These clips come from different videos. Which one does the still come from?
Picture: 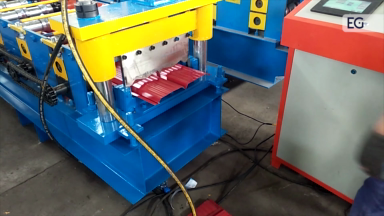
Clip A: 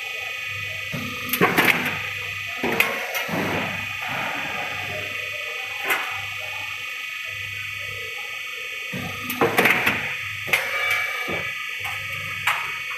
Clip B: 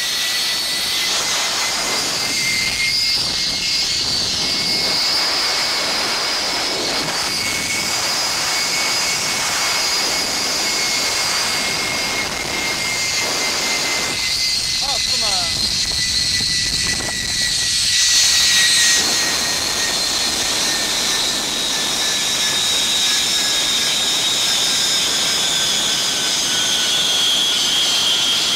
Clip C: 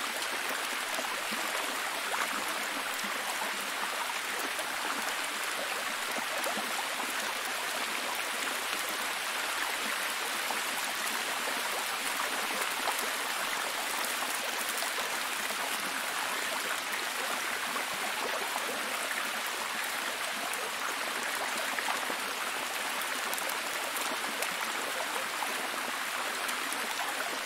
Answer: A